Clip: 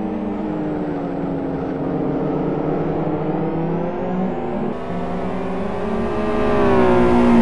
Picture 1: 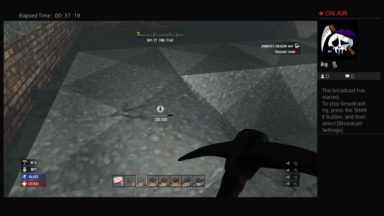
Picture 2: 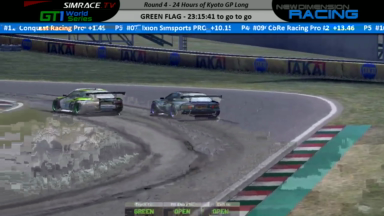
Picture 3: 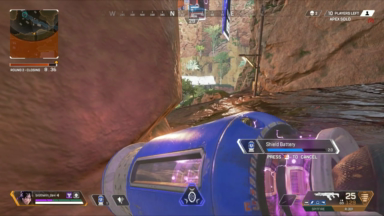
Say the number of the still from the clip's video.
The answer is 2